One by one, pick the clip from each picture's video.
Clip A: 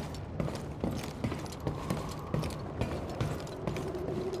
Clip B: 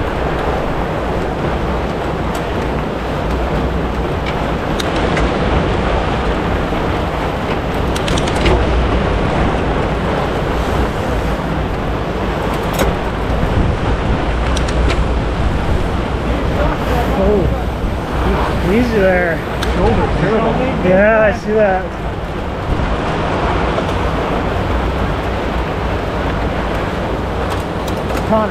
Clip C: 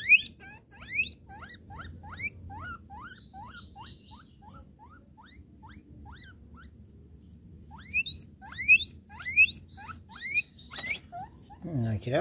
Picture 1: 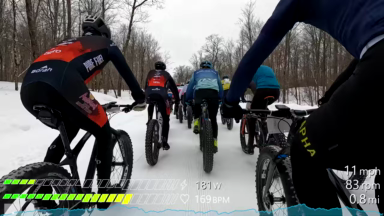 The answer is B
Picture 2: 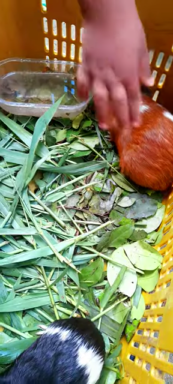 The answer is C